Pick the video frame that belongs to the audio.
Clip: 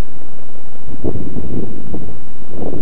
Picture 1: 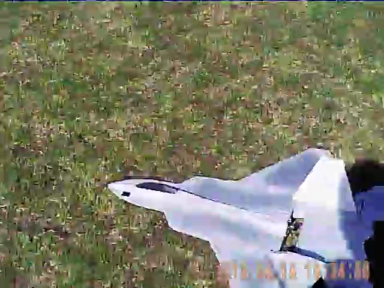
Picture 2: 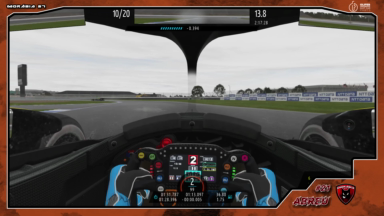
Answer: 1